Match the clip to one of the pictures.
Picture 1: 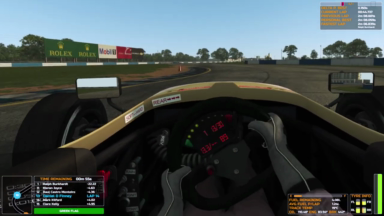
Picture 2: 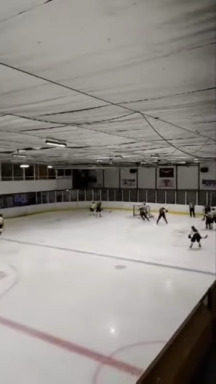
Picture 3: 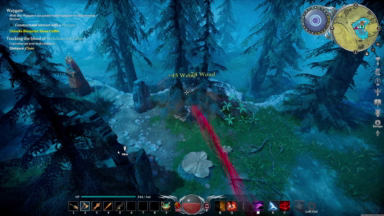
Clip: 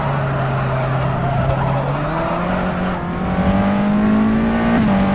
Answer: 1